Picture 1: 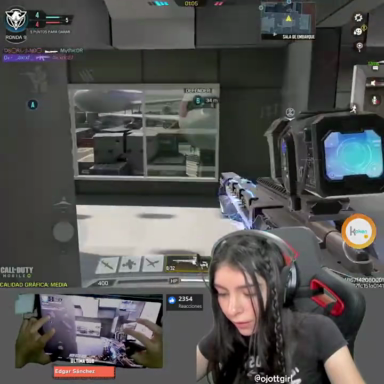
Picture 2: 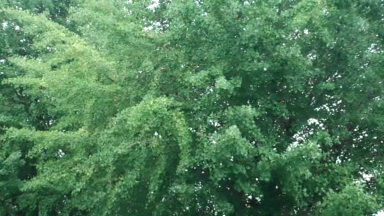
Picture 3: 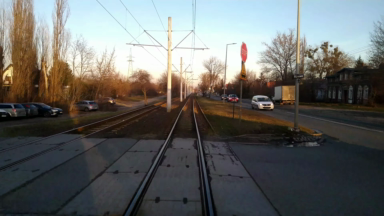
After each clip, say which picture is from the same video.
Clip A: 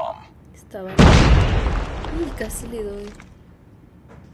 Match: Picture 1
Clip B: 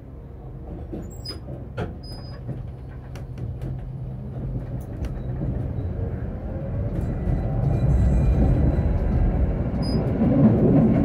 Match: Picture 3